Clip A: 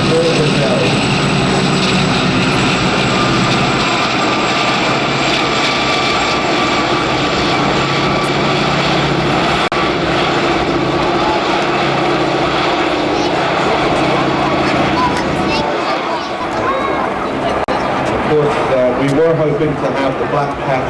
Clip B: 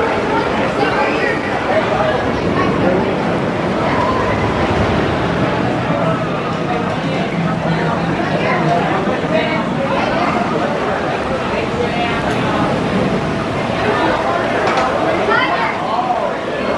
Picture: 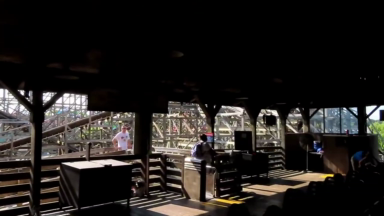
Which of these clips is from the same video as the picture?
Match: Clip B